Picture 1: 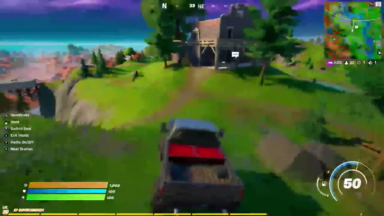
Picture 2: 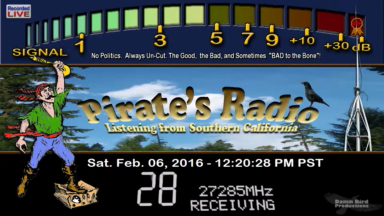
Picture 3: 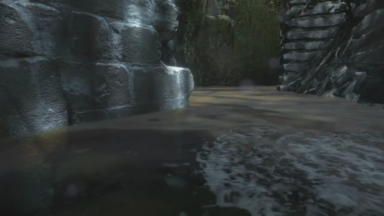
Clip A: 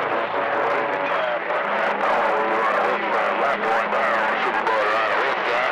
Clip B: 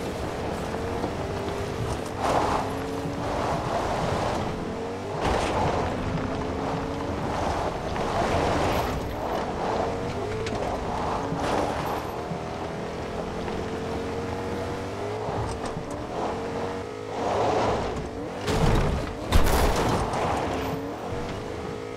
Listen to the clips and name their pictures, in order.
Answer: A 2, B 1